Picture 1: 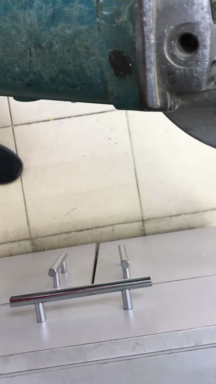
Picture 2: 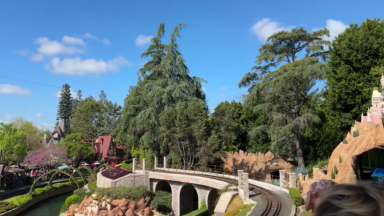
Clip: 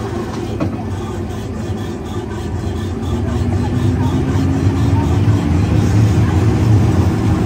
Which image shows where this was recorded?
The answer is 2